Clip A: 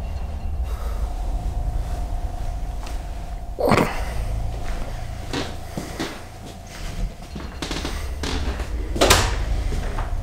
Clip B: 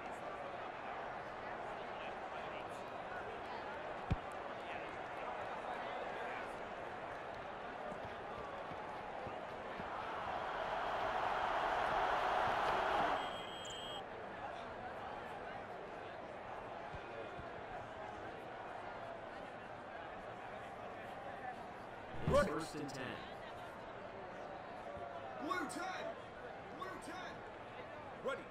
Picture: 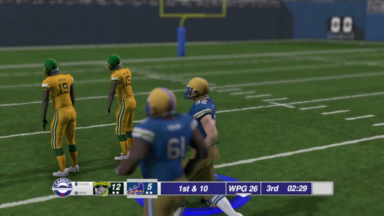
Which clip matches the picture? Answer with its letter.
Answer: B